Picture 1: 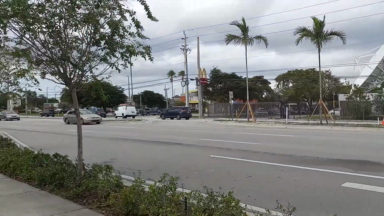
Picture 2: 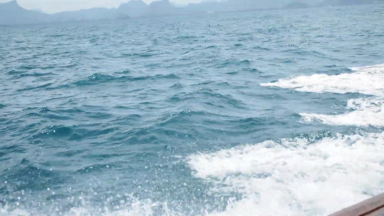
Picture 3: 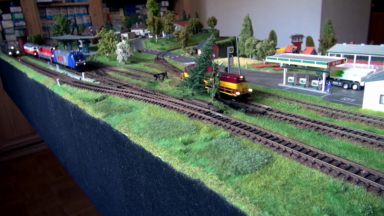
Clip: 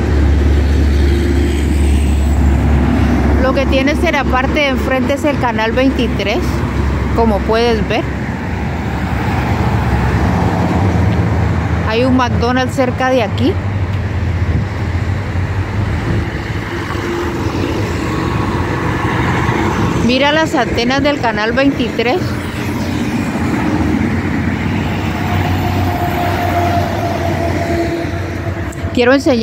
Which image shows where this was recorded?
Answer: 1